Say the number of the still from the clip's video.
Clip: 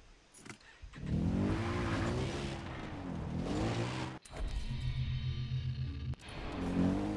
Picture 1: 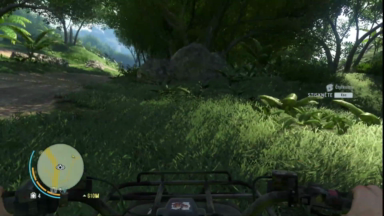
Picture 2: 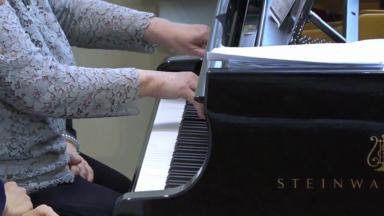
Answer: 1